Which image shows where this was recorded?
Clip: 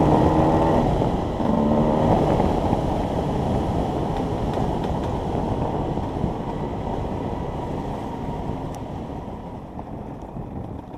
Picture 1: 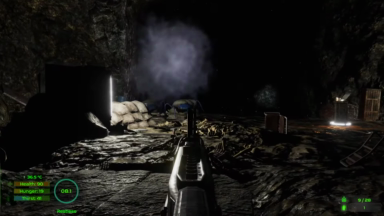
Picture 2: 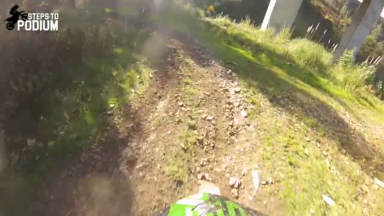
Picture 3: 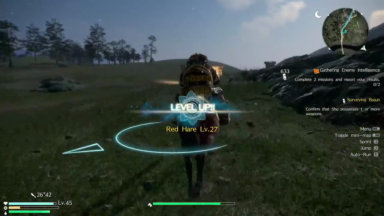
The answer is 2